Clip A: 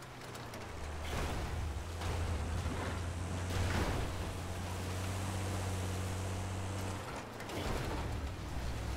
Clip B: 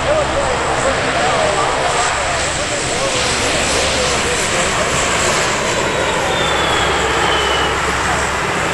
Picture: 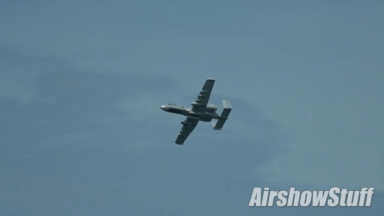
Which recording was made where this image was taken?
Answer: B